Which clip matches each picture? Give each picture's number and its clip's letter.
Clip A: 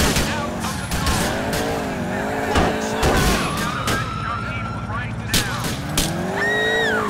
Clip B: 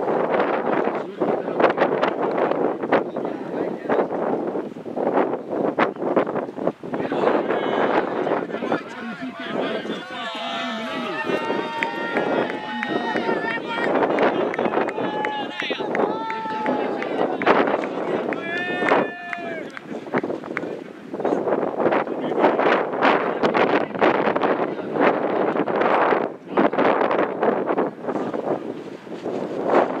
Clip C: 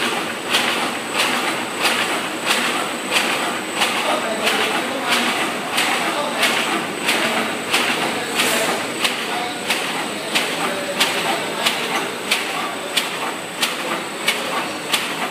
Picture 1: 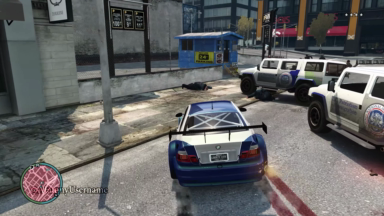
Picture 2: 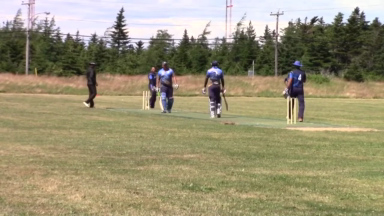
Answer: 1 A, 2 B